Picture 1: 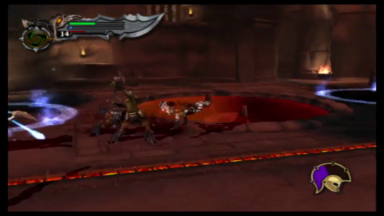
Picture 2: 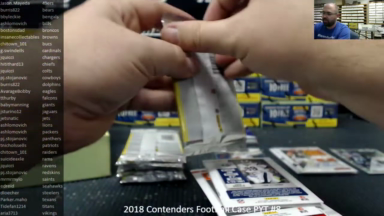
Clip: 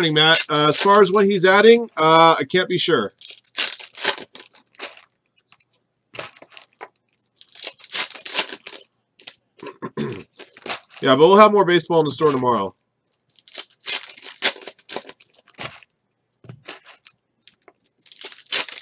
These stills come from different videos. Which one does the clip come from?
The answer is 2